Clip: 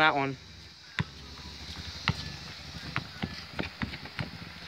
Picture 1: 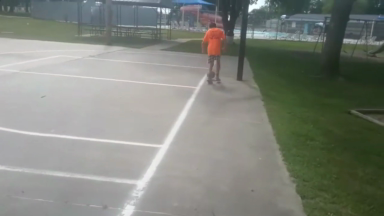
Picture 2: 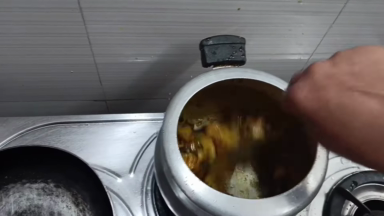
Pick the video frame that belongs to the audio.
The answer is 1